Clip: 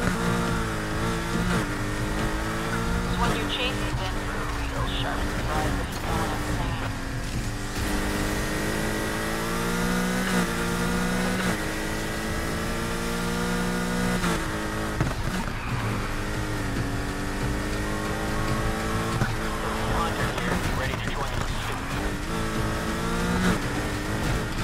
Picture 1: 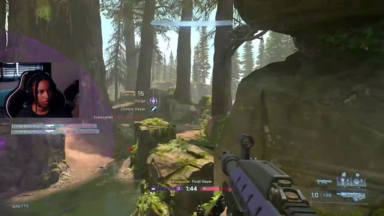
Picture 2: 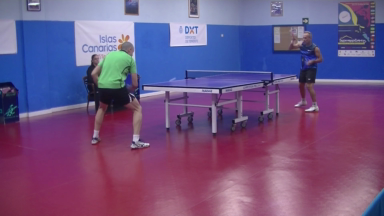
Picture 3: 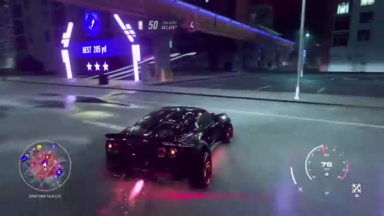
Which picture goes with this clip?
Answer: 3